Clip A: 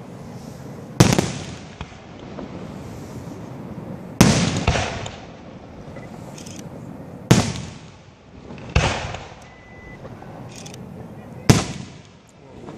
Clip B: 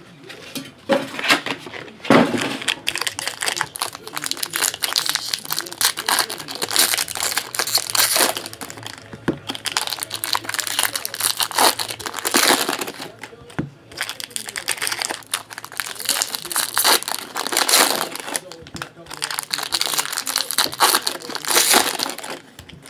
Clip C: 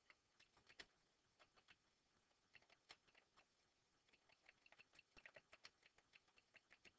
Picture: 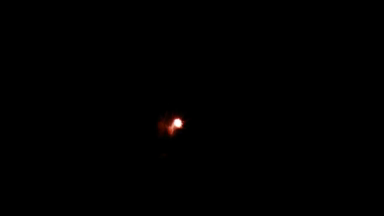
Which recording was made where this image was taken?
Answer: A